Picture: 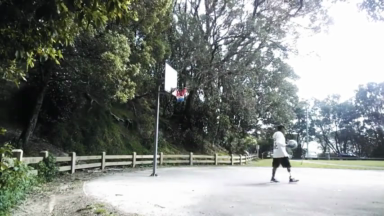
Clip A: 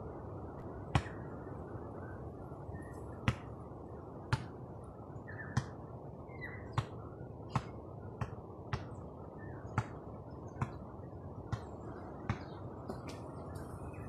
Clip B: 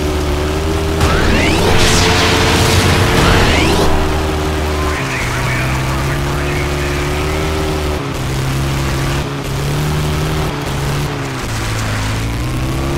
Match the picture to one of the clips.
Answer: A